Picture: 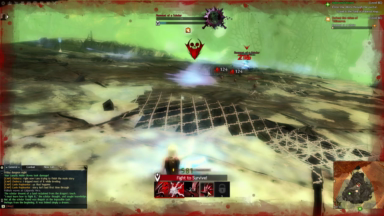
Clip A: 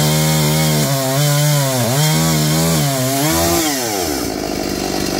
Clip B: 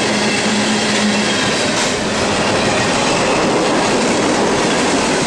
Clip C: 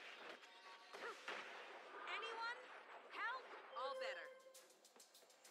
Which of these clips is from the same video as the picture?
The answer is C